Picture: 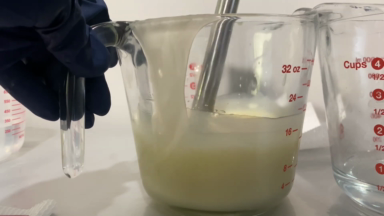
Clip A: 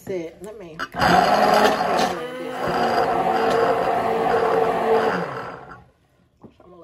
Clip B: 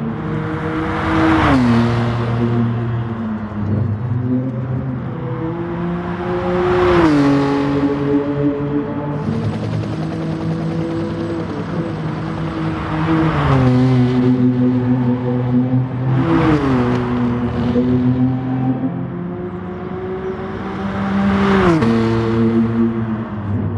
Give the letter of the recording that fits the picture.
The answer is A